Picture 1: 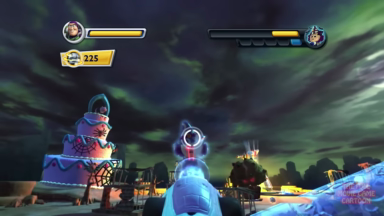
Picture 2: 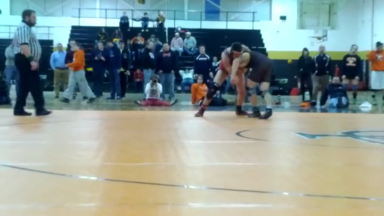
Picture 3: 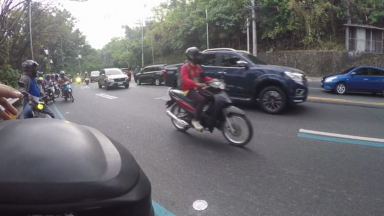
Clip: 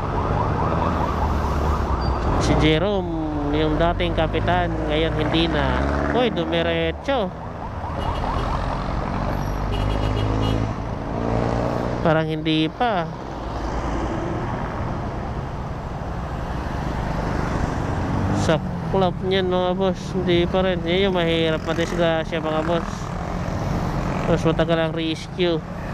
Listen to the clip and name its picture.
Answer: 3